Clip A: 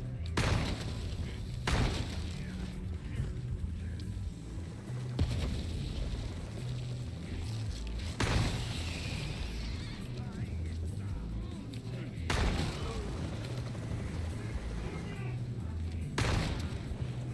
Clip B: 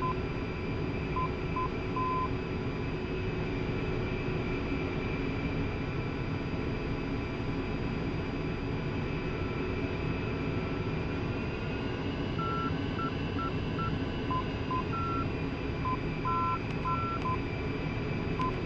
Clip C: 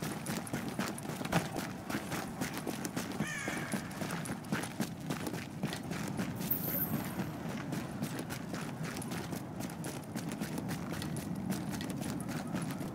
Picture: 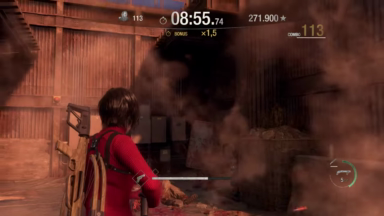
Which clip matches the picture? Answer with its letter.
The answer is A